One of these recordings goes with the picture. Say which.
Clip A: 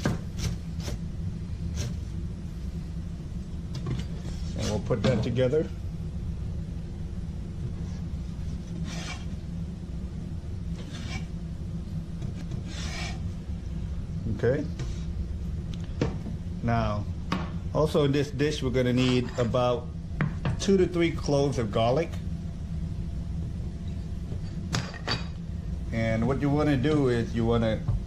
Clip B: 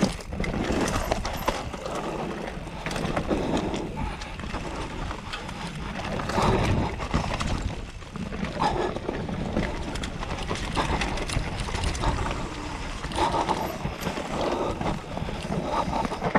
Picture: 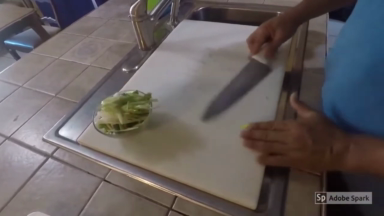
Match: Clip A